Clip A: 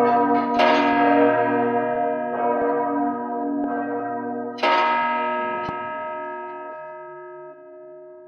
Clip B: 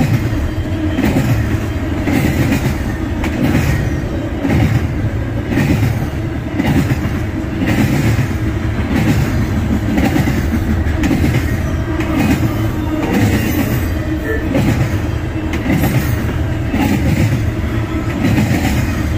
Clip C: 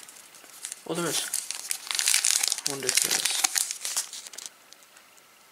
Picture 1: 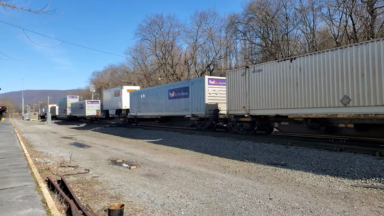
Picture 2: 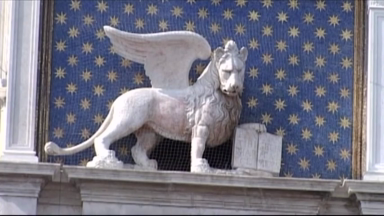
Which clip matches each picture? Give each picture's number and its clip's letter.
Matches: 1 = B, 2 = A